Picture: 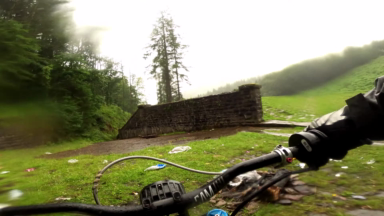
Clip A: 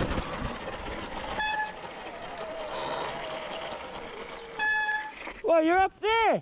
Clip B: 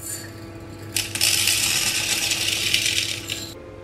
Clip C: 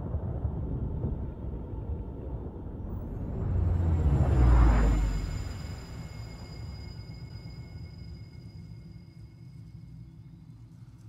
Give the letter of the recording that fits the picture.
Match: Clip A